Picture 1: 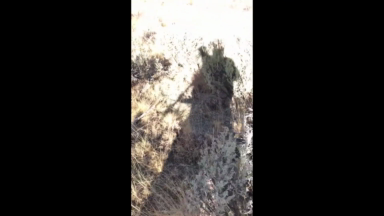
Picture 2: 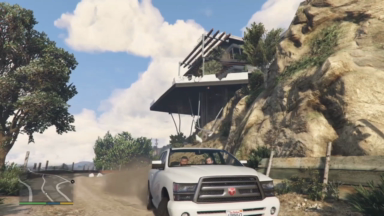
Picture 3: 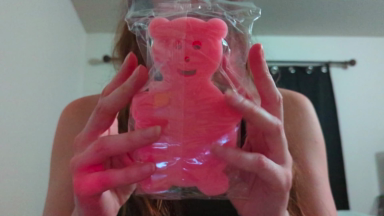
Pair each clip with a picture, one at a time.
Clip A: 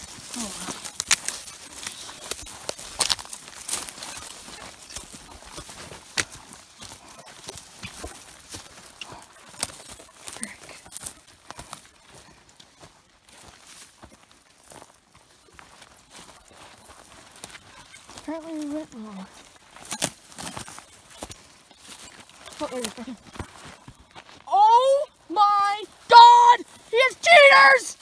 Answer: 1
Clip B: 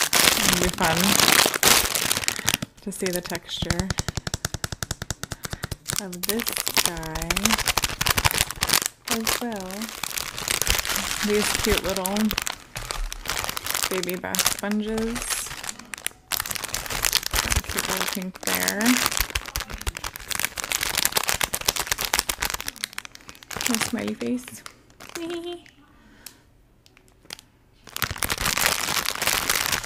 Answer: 3